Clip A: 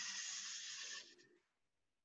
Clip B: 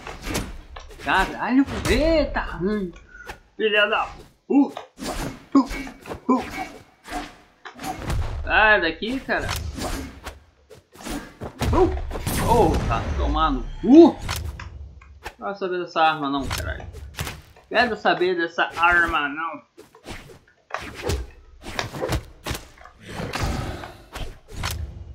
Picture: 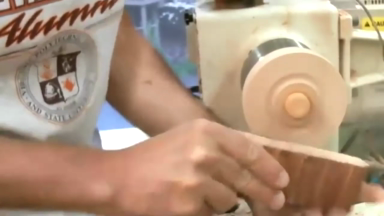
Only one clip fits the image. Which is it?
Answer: A